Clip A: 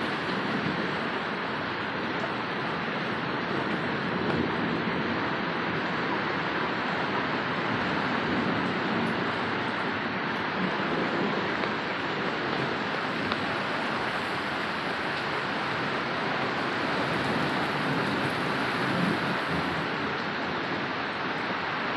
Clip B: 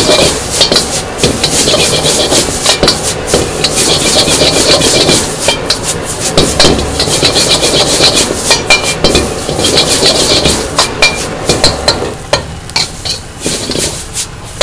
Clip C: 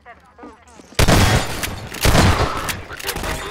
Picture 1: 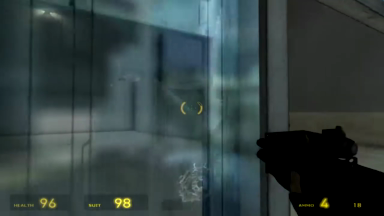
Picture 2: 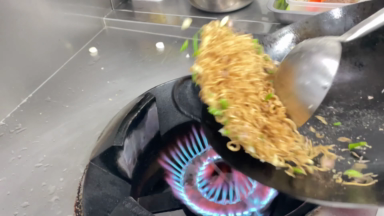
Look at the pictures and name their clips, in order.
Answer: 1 C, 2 B